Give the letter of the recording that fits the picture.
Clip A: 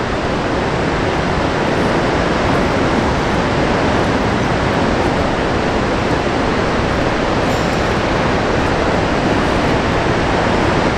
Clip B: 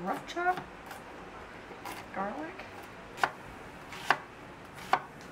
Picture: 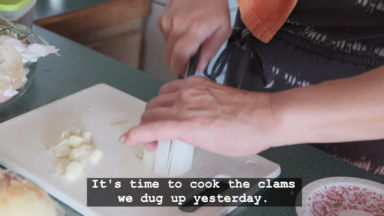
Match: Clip B